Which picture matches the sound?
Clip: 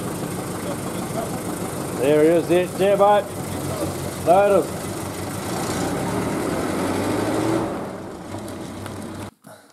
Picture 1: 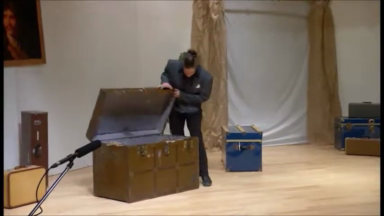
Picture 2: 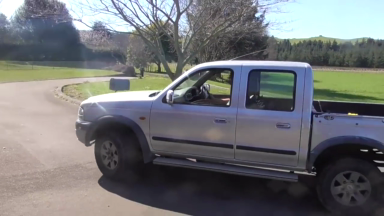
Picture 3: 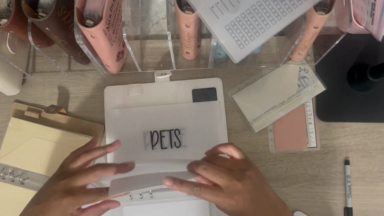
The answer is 2